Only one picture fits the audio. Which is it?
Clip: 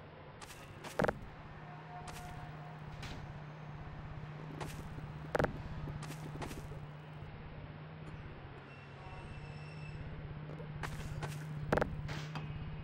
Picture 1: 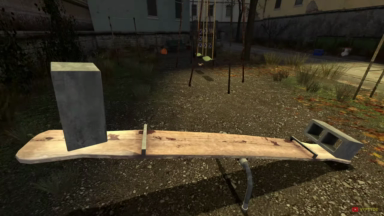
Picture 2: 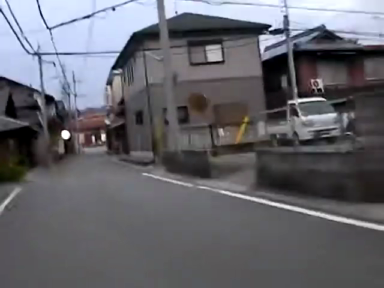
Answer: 1